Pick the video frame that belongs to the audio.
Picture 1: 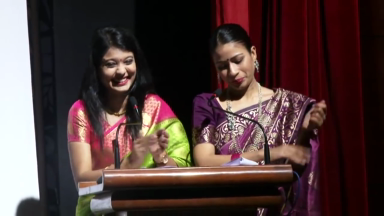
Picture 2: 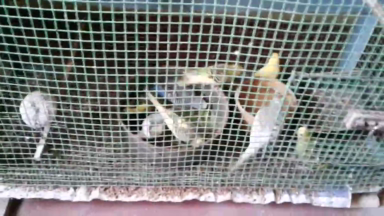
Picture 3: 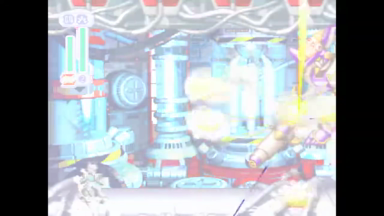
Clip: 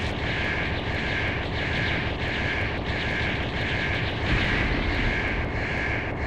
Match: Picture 3